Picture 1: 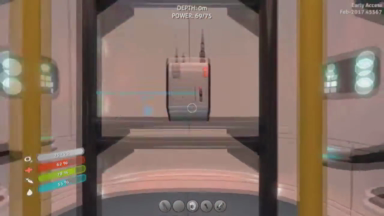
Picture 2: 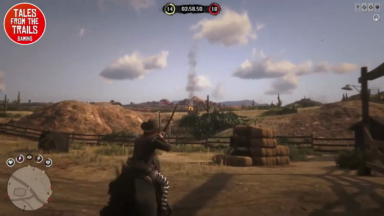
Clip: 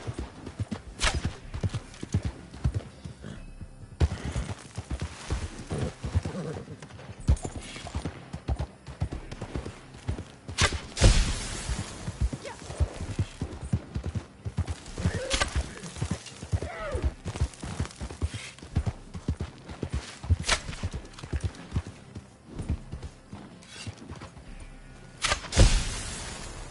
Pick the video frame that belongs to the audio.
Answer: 2